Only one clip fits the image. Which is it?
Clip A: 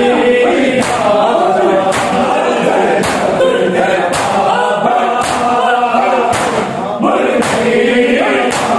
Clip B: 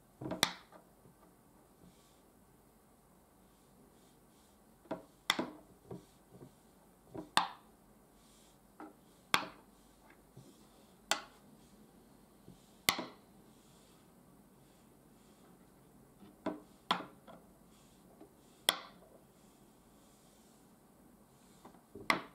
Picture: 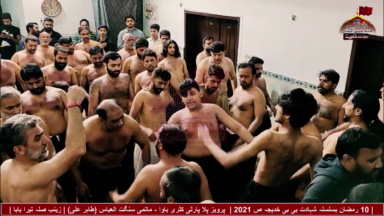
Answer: A